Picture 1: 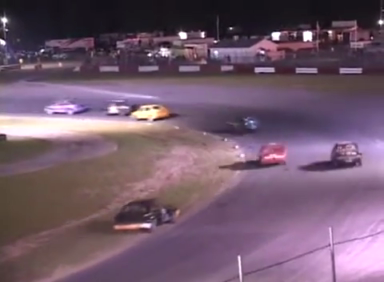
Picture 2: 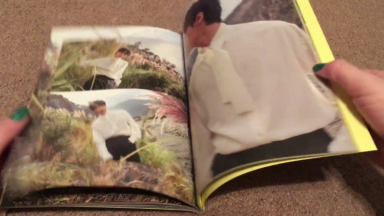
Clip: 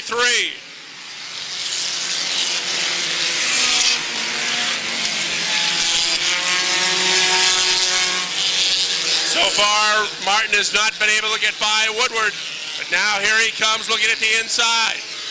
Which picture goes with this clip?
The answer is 1